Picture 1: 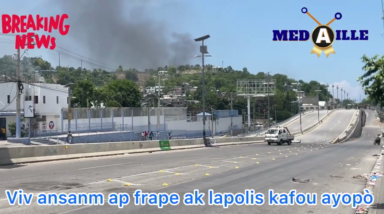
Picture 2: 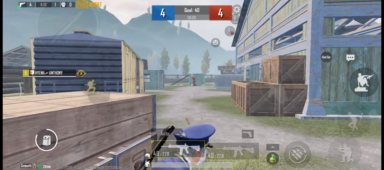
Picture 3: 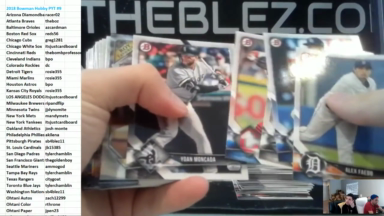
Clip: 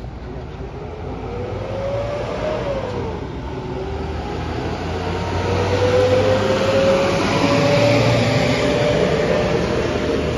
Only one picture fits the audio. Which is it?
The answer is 1